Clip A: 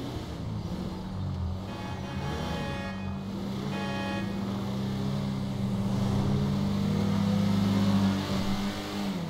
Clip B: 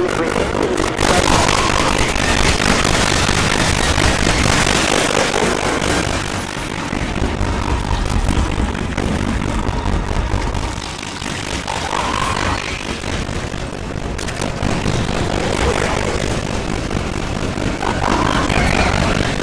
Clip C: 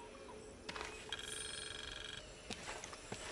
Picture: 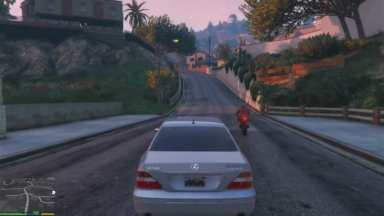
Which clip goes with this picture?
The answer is A